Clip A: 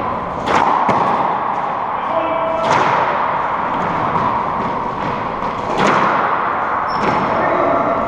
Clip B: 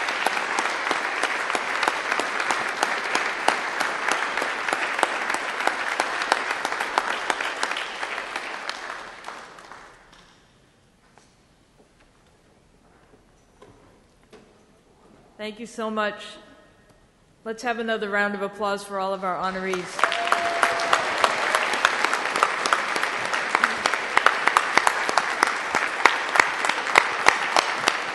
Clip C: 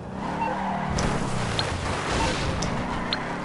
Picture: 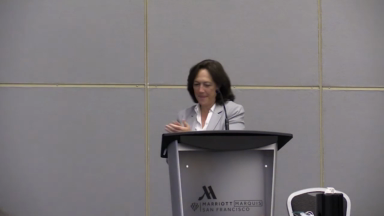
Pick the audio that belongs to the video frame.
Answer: B